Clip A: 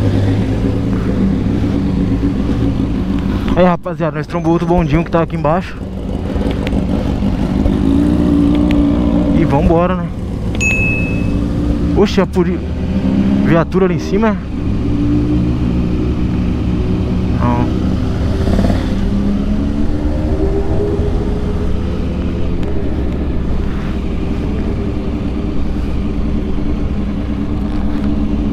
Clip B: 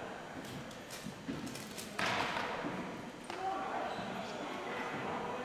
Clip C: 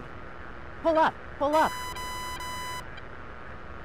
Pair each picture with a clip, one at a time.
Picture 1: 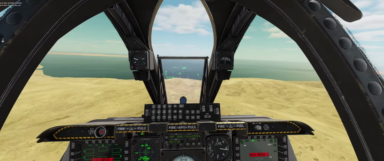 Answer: C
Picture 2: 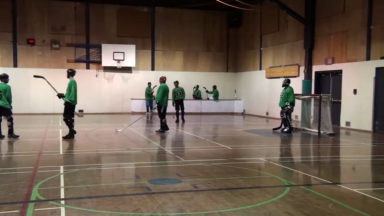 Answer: B